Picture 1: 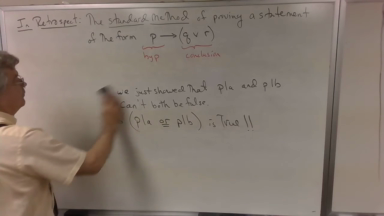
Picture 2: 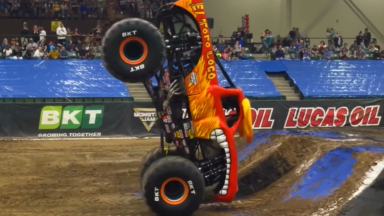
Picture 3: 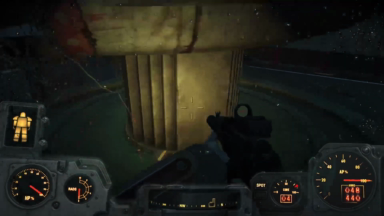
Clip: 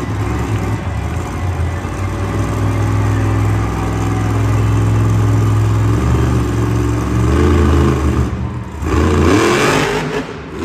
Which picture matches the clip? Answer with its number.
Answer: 2